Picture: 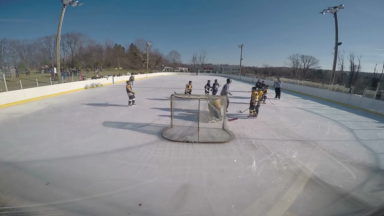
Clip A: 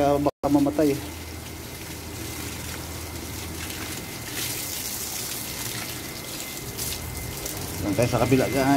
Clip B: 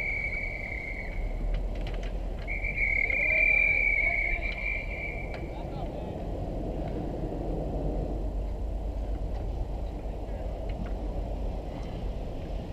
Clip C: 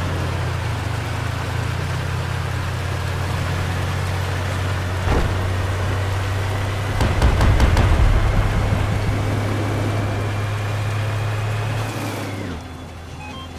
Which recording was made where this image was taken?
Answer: B